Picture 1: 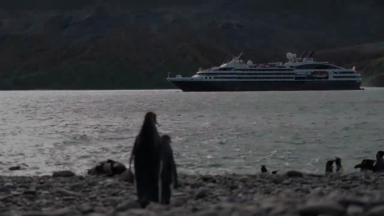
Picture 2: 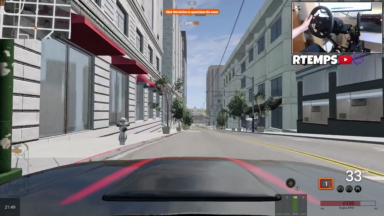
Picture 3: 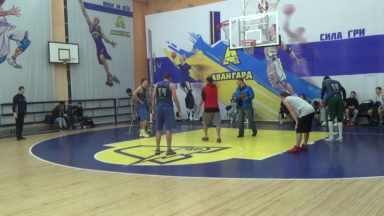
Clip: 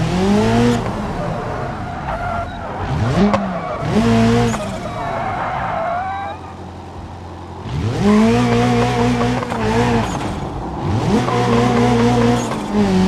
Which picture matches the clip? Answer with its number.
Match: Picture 2